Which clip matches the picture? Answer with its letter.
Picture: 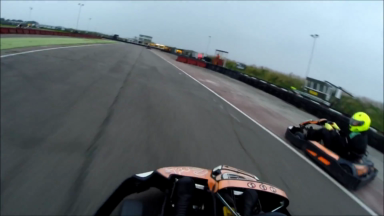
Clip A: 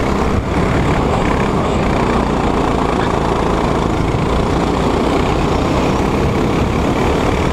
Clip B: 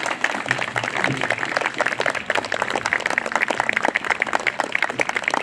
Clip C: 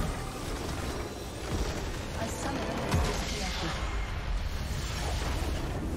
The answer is A